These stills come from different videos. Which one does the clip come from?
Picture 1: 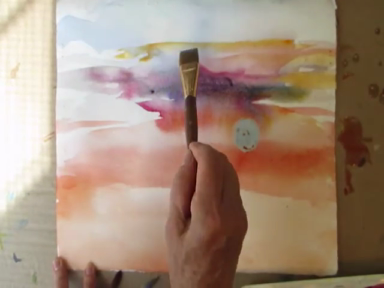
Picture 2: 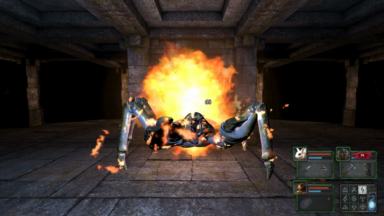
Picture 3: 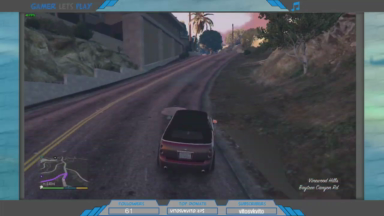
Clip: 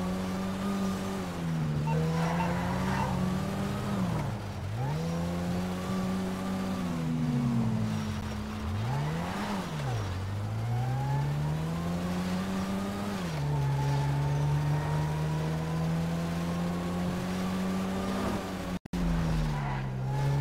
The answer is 3